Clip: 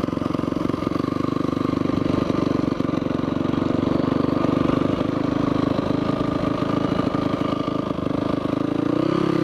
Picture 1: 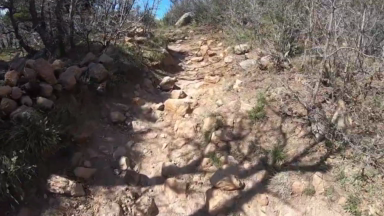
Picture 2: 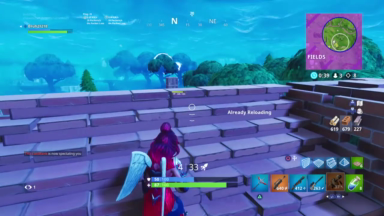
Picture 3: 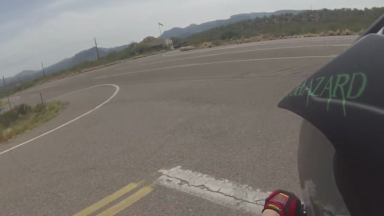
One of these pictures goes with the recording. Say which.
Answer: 3